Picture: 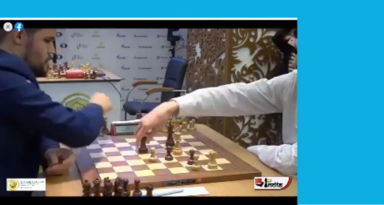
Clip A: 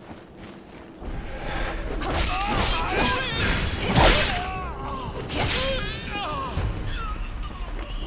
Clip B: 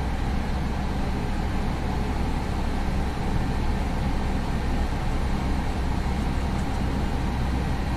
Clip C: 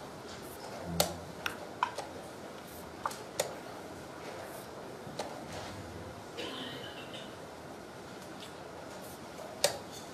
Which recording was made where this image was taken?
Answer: C